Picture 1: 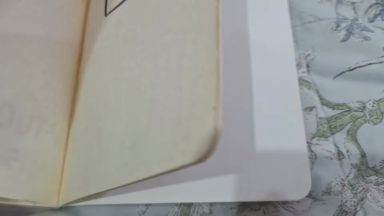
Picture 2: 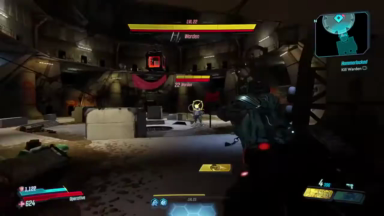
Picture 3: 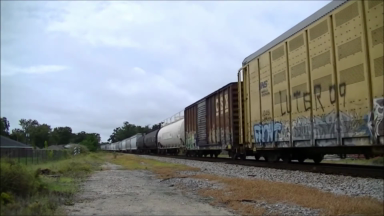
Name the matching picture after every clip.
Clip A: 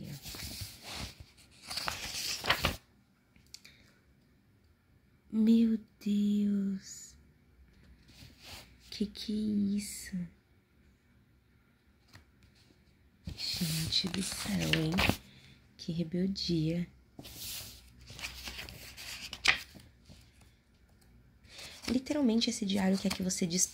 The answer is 1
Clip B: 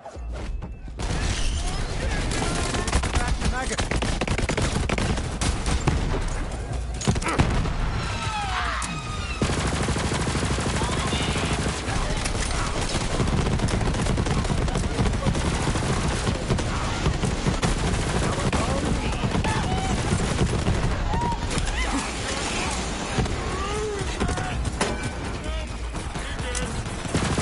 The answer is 2